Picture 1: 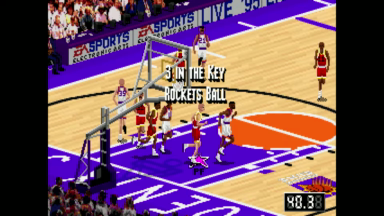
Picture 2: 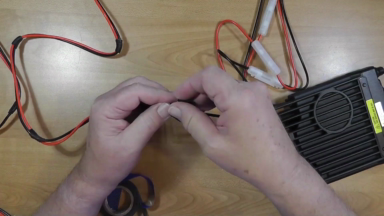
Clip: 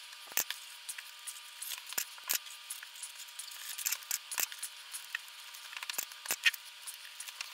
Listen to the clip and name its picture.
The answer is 2